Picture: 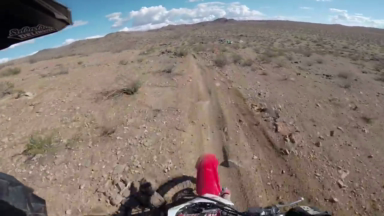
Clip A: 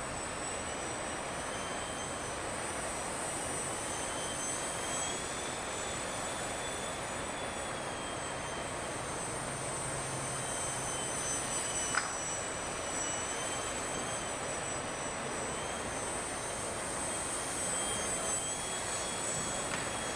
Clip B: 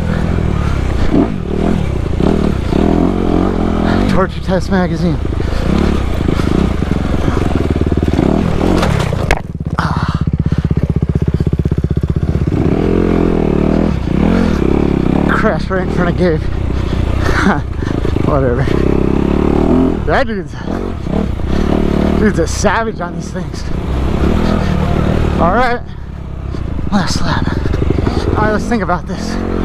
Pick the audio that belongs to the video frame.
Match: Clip B